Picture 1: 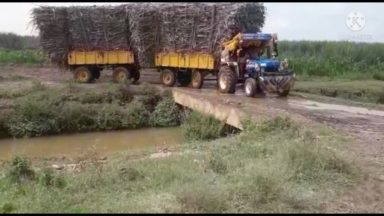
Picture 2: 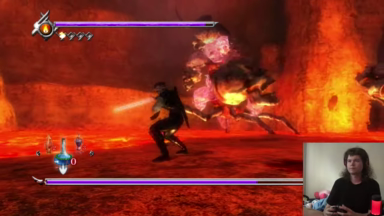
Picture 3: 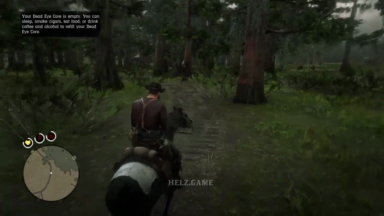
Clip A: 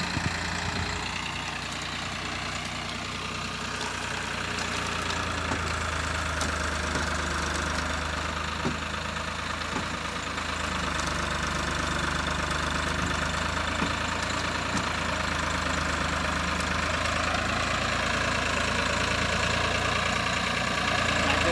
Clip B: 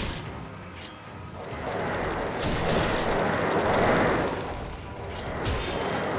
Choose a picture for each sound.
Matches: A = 1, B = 2